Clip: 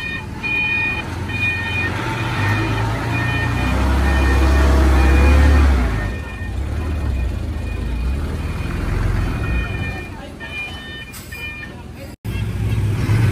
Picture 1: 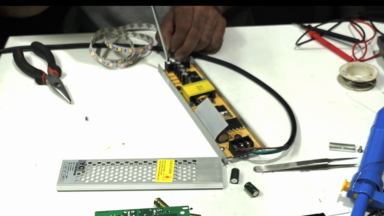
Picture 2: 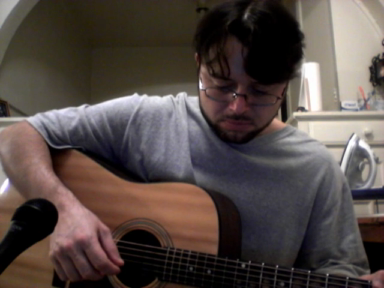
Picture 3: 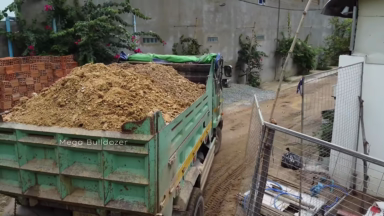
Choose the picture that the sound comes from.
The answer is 3